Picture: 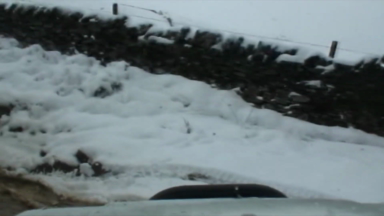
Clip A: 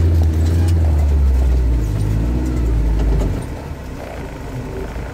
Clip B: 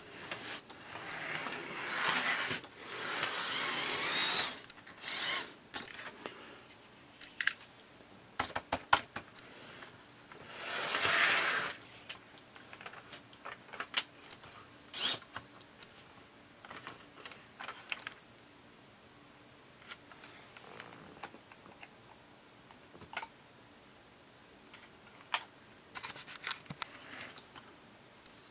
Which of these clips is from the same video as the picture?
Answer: A